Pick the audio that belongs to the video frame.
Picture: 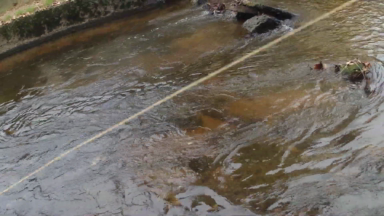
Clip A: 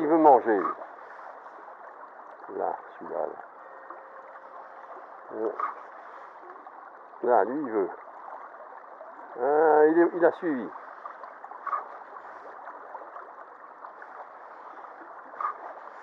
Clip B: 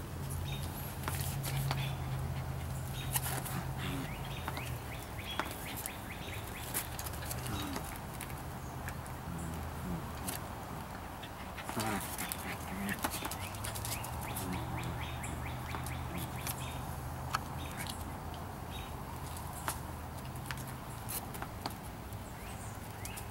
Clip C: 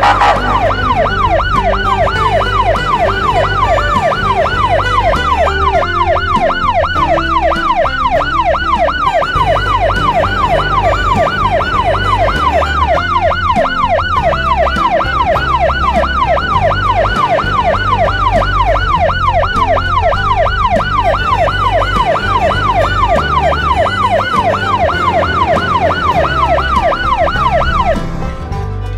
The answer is A